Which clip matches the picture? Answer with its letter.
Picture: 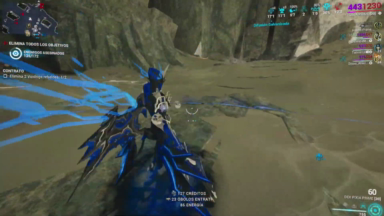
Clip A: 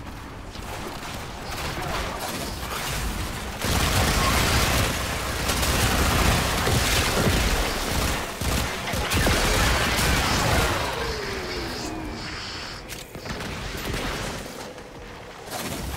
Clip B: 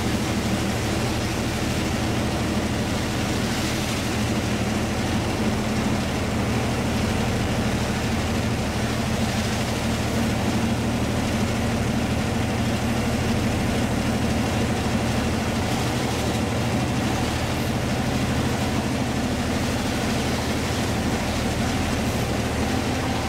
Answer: A